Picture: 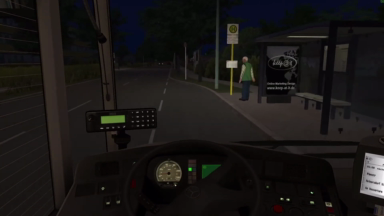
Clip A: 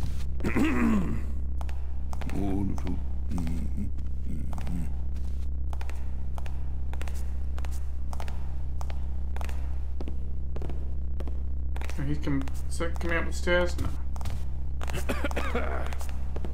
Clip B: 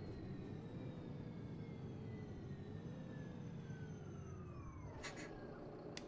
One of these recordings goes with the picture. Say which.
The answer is B